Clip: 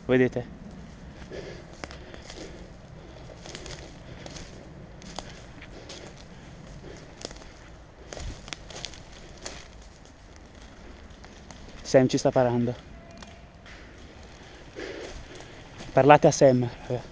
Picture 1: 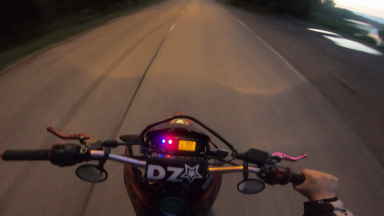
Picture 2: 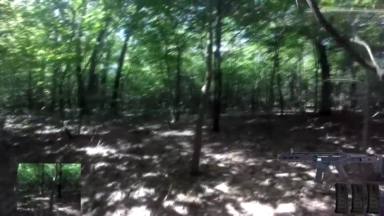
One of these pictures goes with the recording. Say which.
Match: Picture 2